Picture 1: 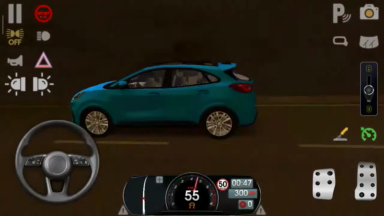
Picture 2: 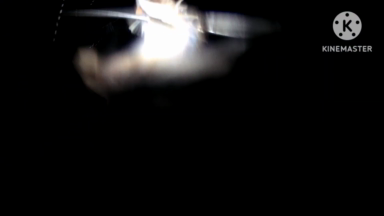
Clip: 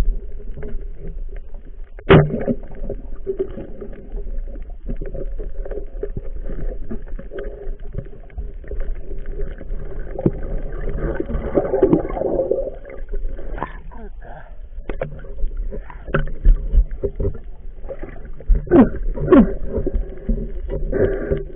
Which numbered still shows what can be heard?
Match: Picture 2